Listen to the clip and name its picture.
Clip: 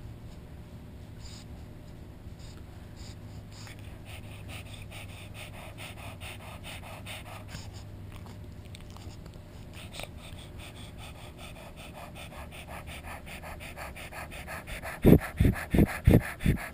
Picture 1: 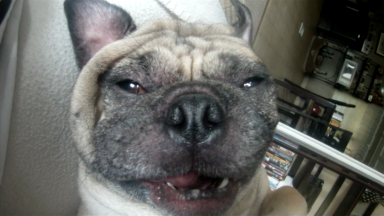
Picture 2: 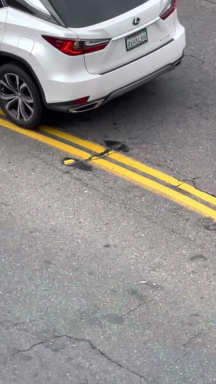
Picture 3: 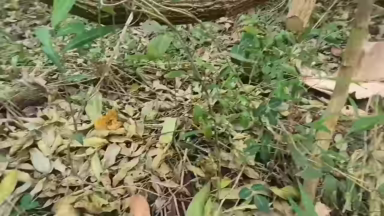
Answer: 1